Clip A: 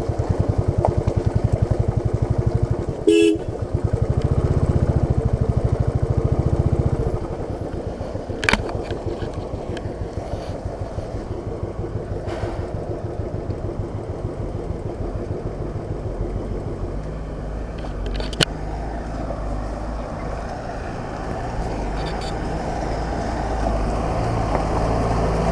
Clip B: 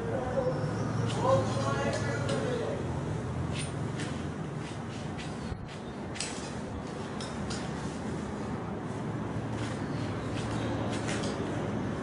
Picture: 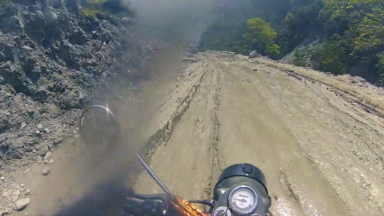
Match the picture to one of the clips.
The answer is A